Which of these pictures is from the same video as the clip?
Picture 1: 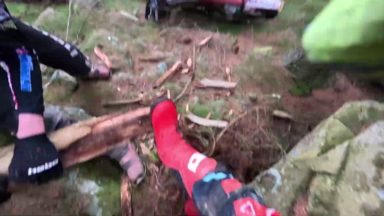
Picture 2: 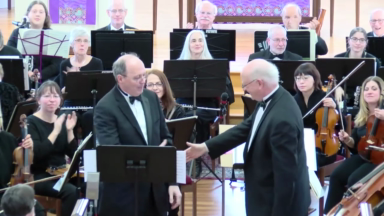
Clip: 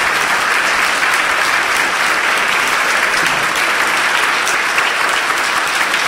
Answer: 2